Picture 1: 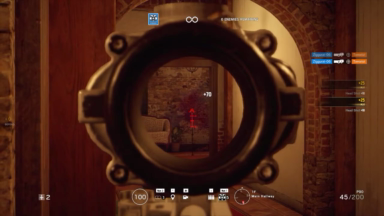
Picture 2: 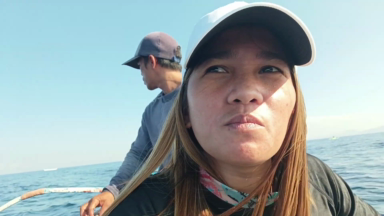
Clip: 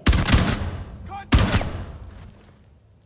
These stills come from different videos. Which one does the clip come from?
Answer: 1